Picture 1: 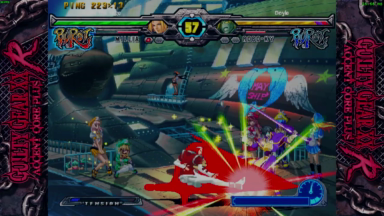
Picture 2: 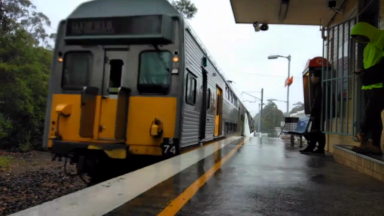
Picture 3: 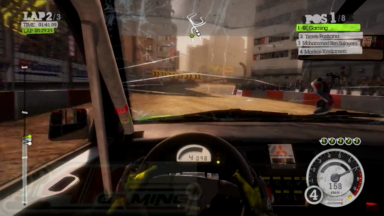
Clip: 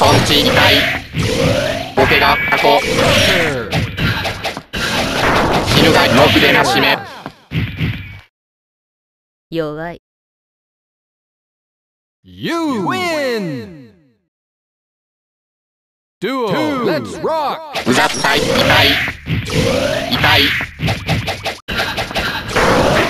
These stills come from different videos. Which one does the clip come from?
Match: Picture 1